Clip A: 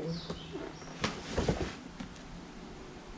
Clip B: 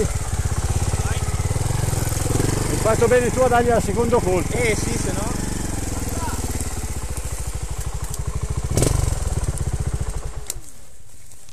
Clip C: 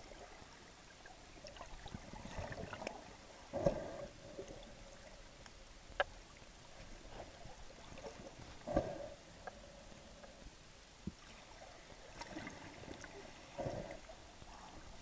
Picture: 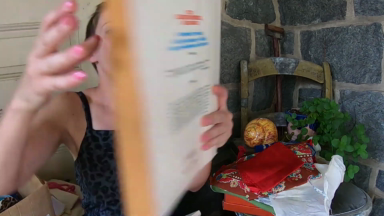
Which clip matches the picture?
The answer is A